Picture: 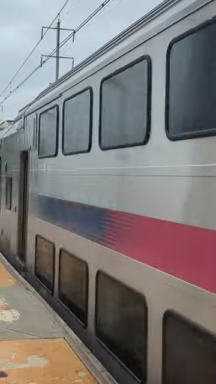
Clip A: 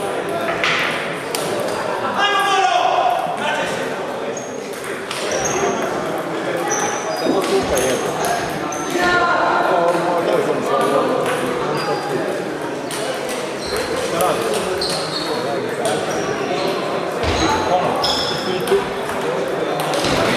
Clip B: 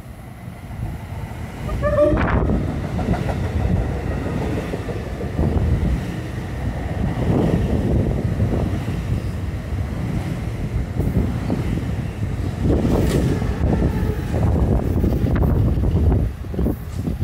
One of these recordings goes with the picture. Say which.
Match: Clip B